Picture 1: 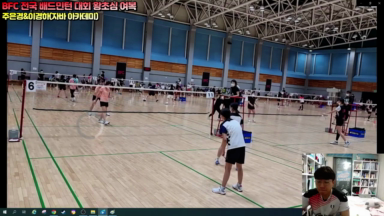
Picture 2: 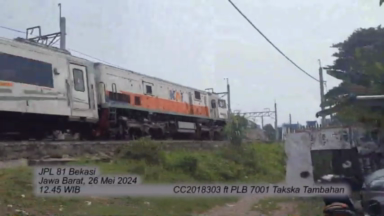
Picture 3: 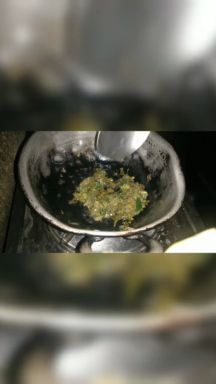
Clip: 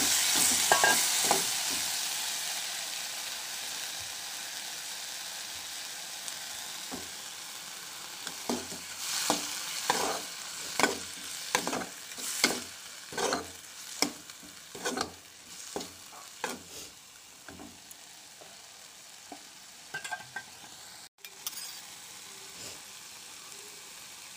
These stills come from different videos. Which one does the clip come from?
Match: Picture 3